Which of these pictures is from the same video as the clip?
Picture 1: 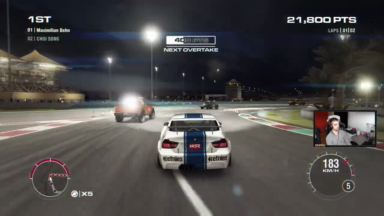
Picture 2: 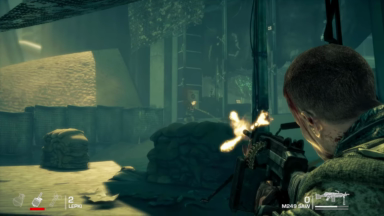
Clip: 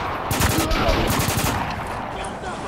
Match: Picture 2